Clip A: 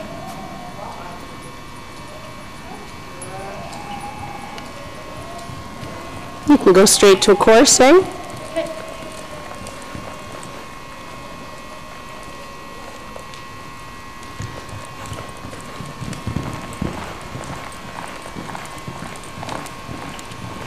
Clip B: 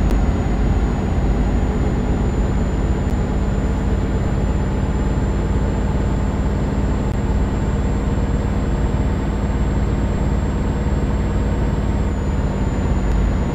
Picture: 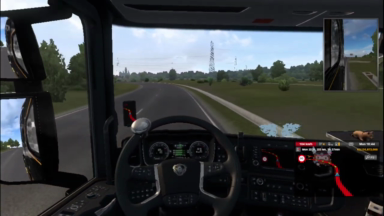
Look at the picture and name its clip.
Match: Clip B